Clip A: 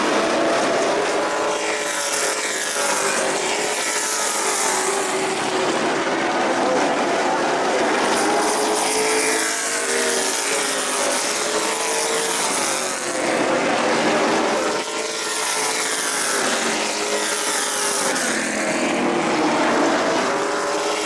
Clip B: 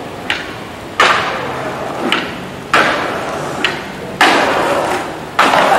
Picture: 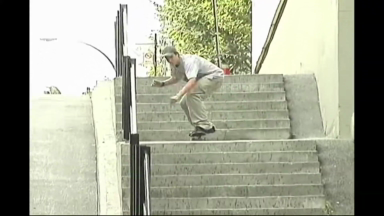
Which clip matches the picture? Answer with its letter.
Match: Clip B